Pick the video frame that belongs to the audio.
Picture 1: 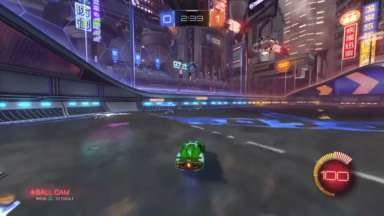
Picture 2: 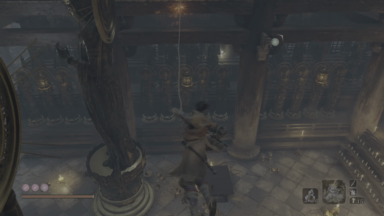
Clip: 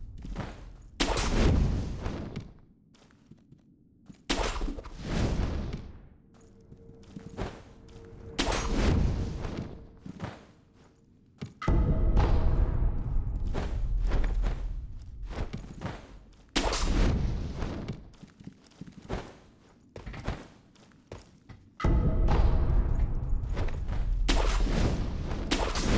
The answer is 2